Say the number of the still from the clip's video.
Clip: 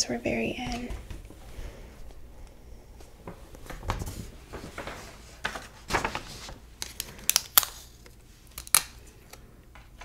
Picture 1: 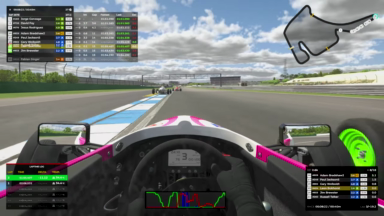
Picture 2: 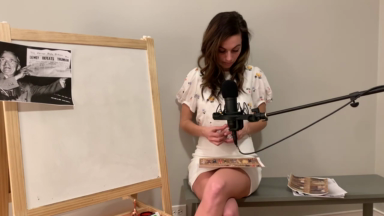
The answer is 2